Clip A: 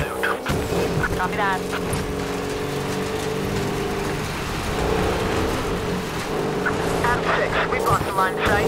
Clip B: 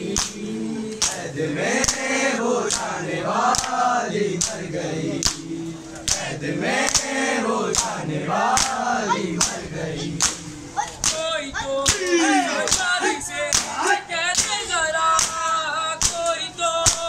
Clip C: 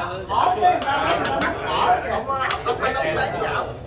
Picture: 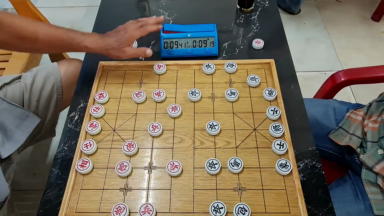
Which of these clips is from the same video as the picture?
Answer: C